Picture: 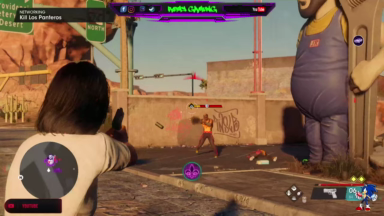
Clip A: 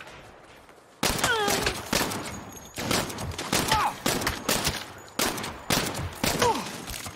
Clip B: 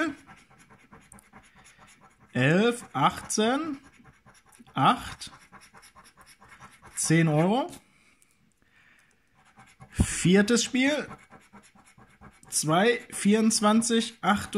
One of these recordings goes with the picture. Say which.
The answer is A